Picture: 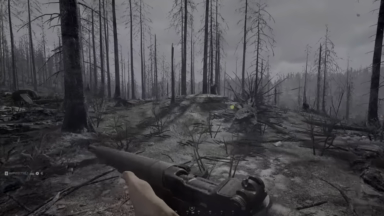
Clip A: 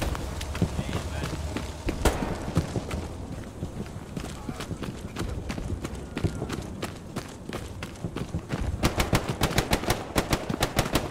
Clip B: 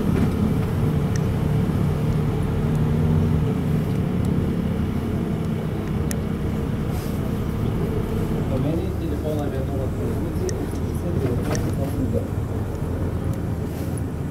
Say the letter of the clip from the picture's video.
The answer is A